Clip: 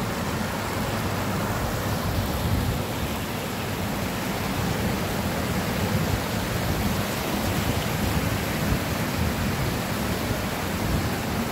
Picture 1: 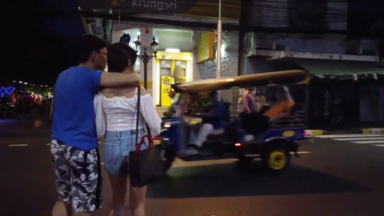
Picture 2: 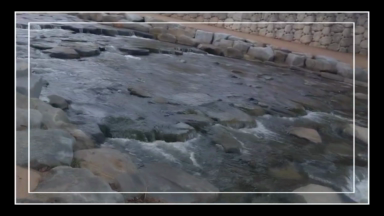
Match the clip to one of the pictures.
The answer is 2